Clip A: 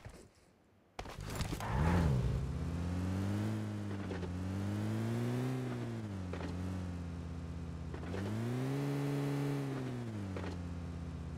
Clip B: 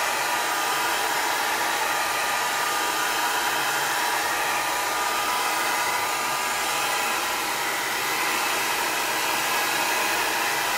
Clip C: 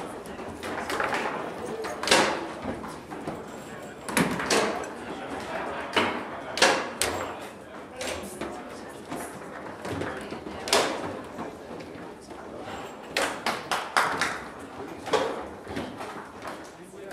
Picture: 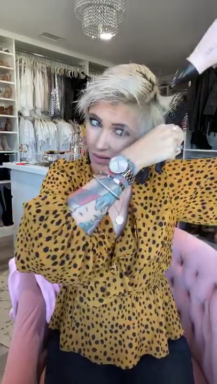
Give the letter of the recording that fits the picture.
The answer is B